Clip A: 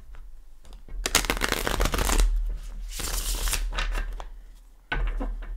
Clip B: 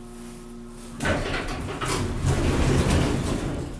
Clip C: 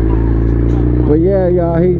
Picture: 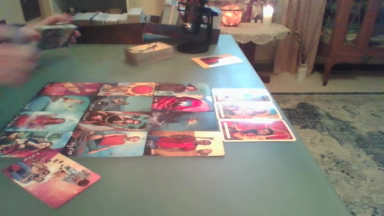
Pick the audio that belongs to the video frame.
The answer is A